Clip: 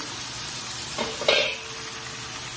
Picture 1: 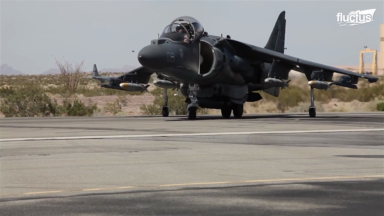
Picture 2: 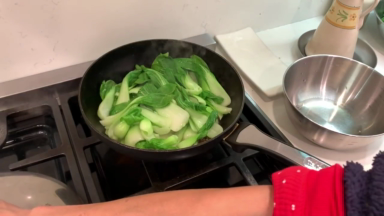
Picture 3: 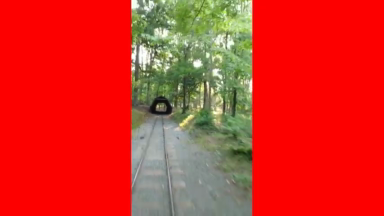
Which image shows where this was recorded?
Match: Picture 2